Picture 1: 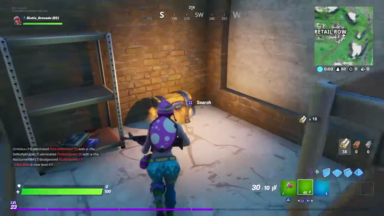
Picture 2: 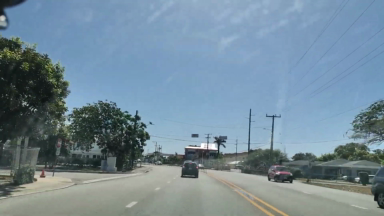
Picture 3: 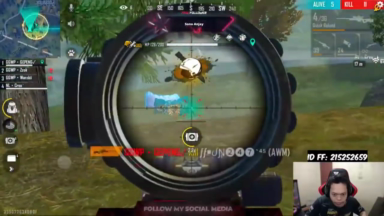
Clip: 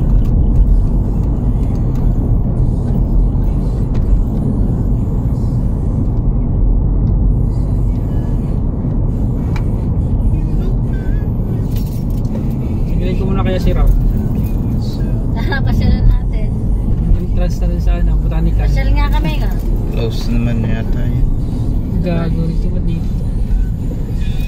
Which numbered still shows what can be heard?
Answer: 2